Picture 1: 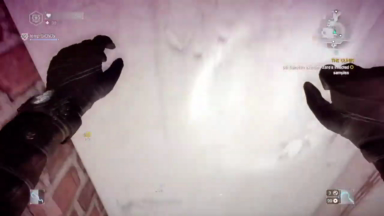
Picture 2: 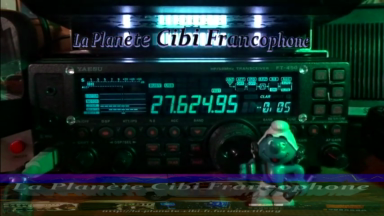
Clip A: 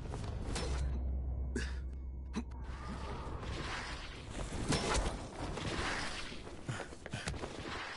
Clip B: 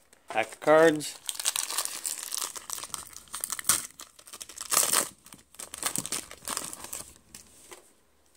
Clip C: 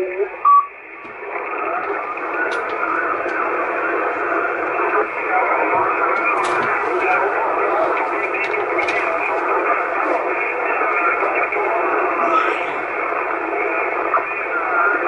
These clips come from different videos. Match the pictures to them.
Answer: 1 A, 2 C